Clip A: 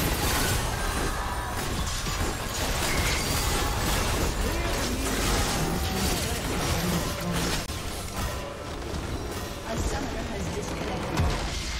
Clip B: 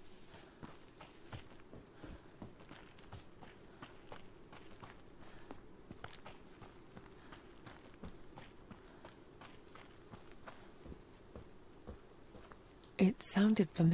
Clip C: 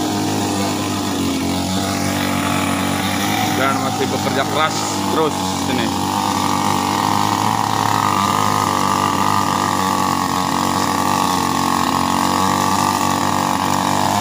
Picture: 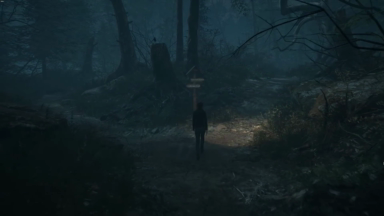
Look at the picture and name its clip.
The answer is B